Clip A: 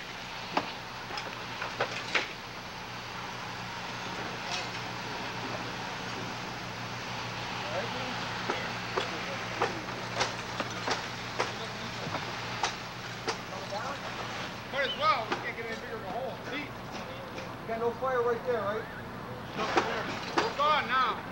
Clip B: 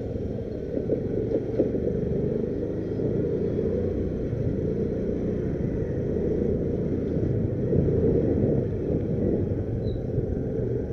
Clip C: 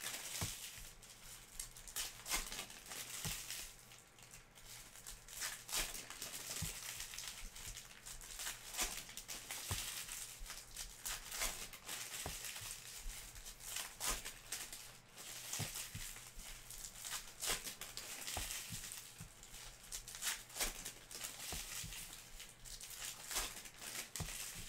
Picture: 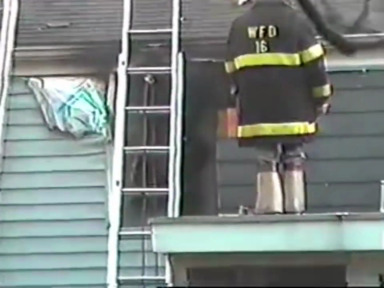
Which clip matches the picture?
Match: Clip A